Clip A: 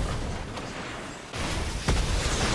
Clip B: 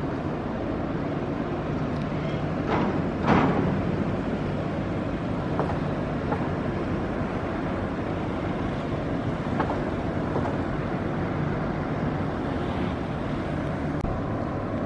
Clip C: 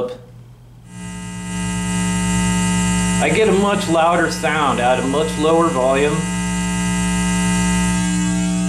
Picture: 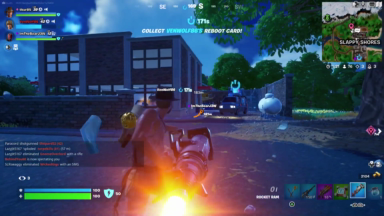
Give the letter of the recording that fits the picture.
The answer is A